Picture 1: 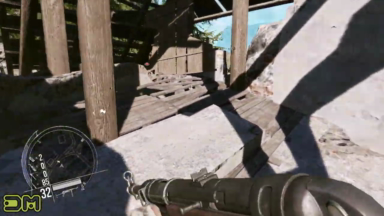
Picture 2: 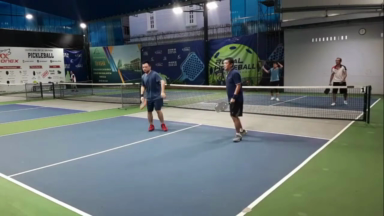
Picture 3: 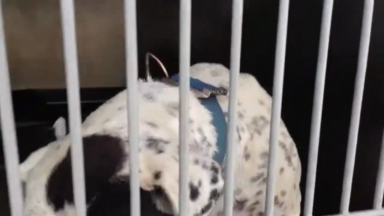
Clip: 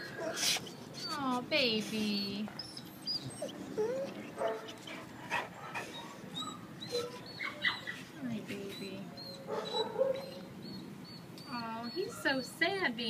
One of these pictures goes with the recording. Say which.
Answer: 3